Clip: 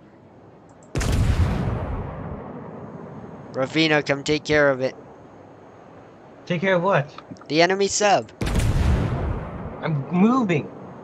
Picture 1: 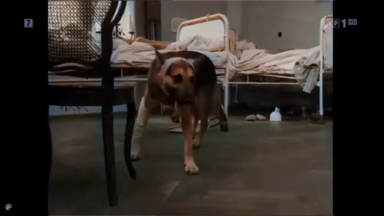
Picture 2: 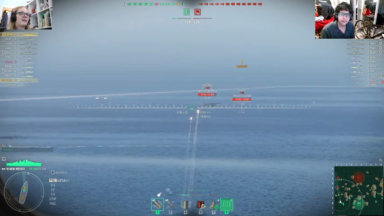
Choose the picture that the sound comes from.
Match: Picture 2